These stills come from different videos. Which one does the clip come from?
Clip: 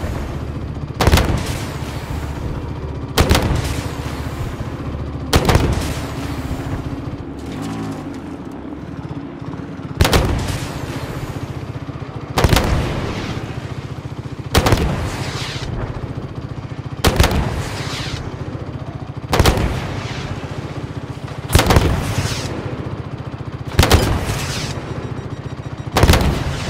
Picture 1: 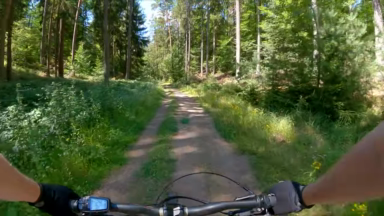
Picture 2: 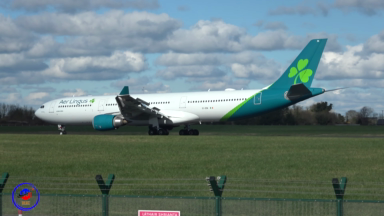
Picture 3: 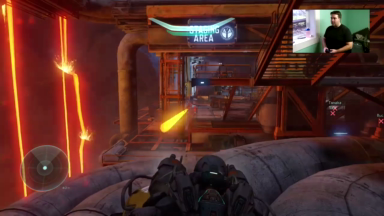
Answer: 3